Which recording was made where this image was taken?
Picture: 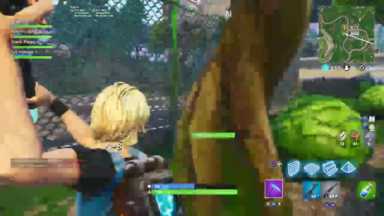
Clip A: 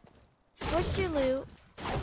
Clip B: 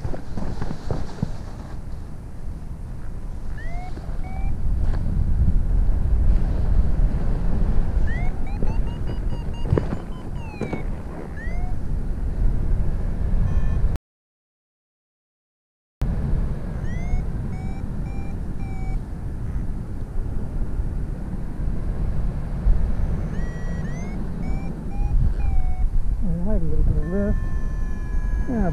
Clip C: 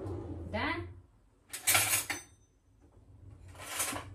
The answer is A